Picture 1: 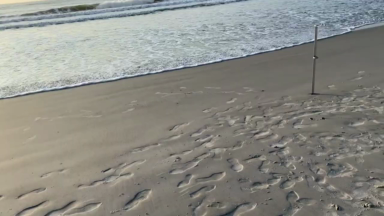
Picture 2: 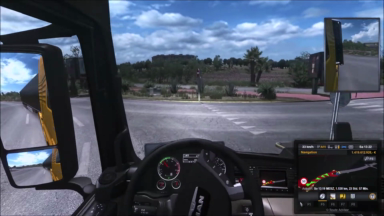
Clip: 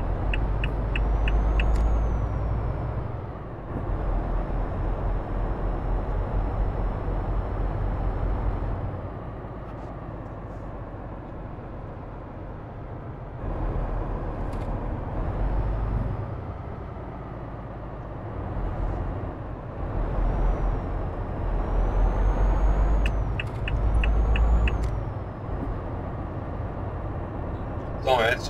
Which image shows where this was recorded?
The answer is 2